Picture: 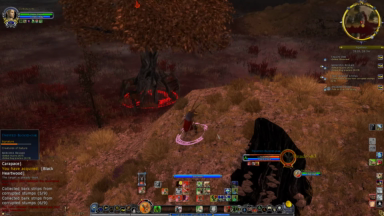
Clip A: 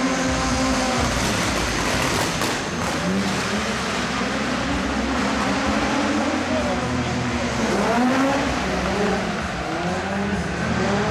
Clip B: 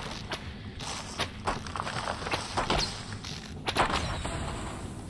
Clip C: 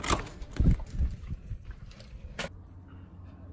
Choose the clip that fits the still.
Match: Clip B